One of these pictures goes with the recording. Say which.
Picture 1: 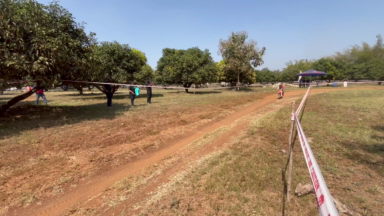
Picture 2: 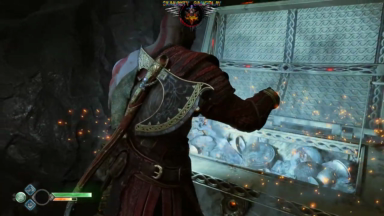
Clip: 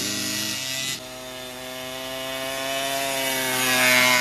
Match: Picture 1